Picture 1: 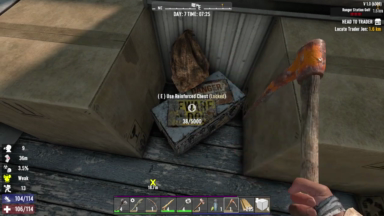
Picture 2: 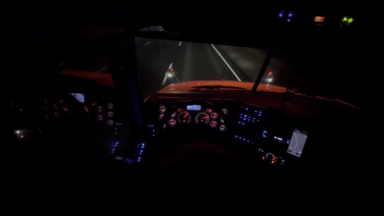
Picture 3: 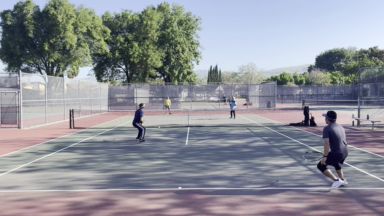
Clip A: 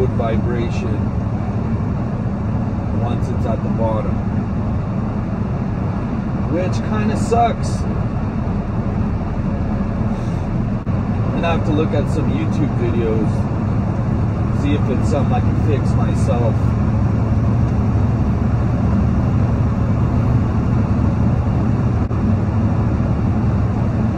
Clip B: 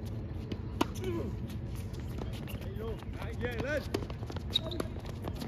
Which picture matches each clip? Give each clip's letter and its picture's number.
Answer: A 2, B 3